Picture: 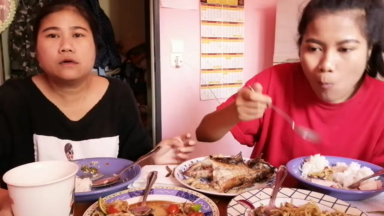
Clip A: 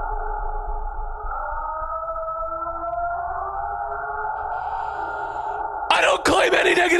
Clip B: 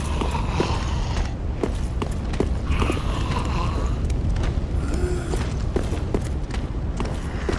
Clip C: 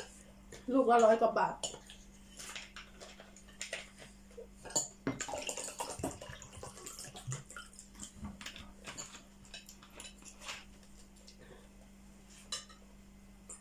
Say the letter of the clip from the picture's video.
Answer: C